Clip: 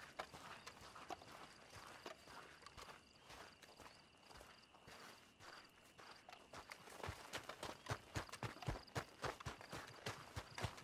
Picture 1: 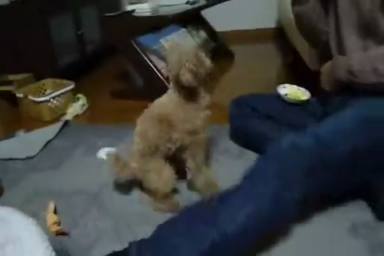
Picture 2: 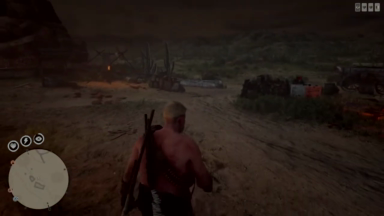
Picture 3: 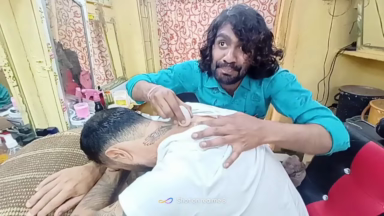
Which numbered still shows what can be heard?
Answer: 2